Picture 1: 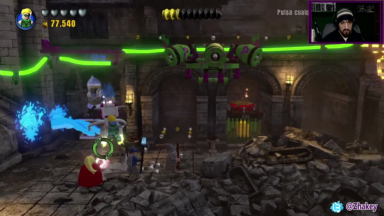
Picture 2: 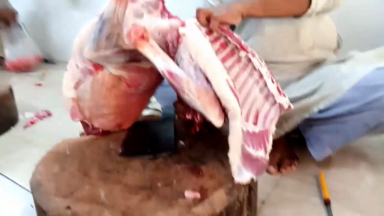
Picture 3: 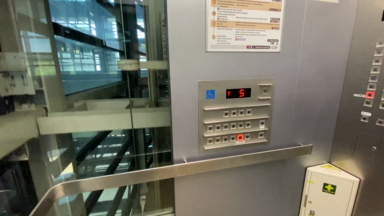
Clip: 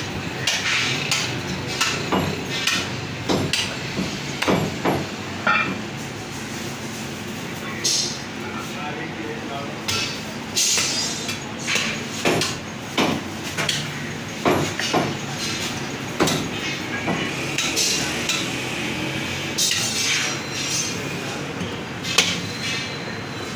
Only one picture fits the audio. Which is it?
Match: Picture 2